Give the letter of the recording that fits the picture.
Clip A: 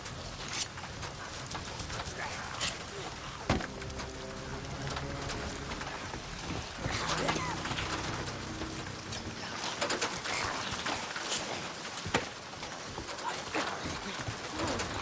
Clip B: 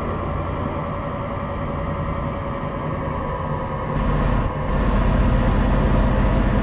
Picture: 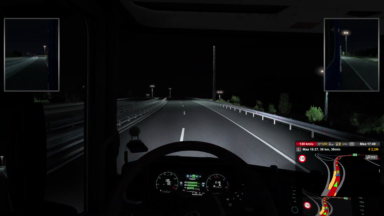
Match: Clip B